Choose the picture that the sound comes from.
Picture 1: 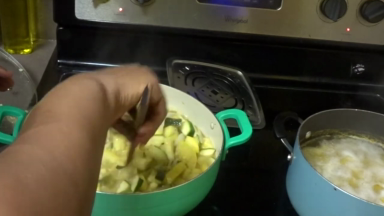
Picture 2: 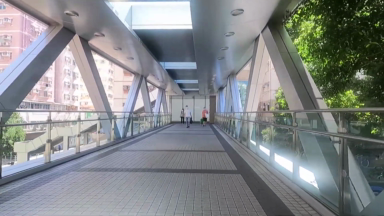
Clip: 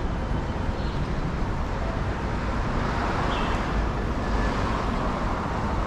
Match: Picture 2